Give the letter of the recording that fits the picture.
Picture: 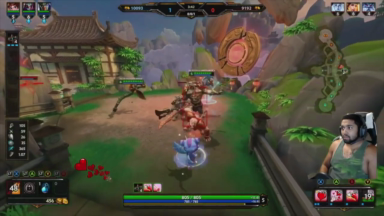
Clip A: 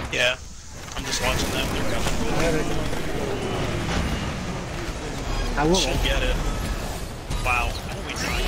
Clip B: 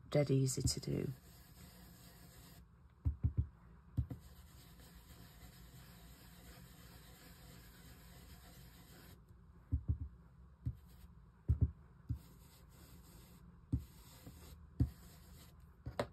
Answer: A